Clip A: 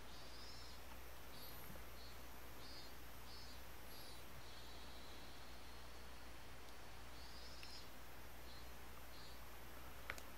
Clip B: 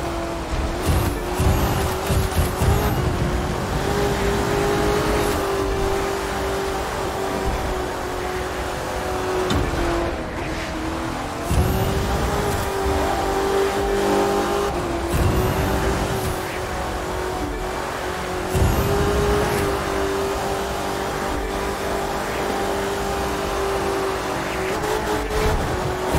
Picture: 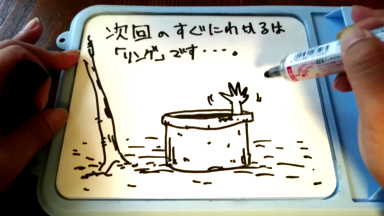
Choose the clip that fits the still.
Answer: A